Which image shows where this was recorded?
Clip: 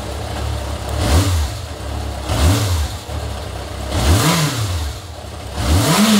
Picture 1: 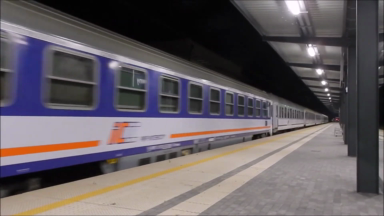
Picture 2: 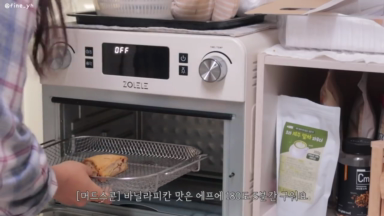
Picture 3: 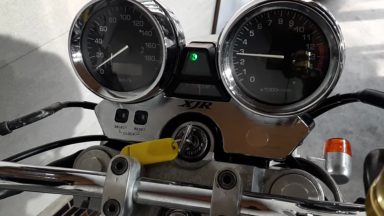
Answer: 3